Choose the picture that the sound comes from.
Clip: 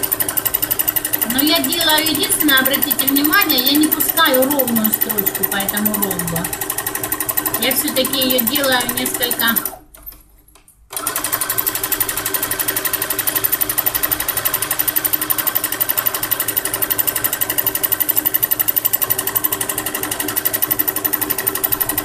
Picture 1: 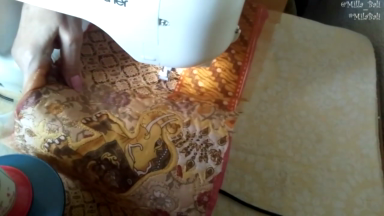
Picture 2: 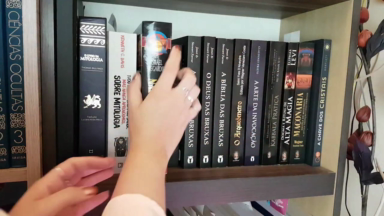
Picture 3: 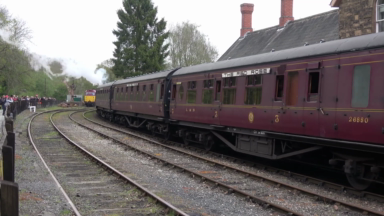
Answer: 1